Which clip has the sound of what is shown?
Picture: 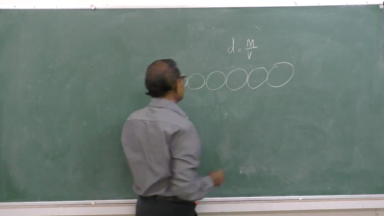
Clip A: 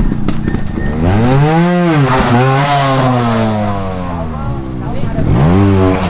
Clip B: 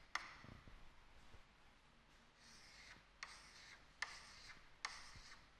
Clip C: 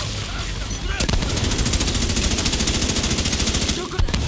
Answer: B